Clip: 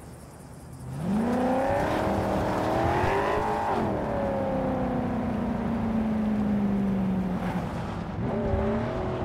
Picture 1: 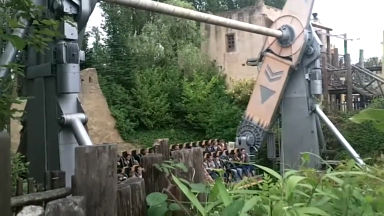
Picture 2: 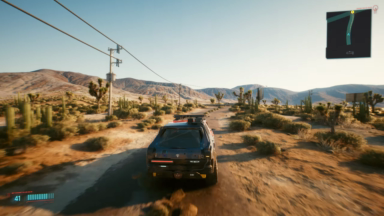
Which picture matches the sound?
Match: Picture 2